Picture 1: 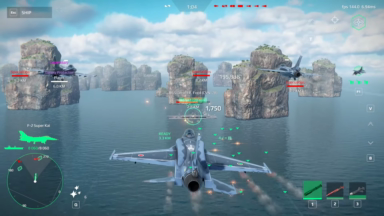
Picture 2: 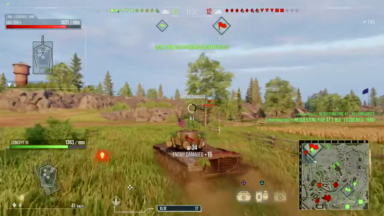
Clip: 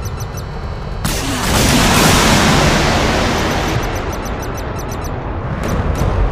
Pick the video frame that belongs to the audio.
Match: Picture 1